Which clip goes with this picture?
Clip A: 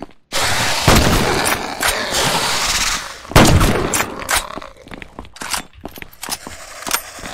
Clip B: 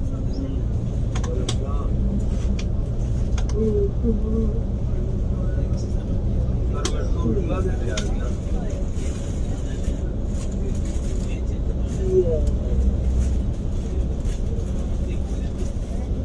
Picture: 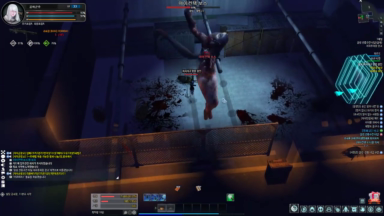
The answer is A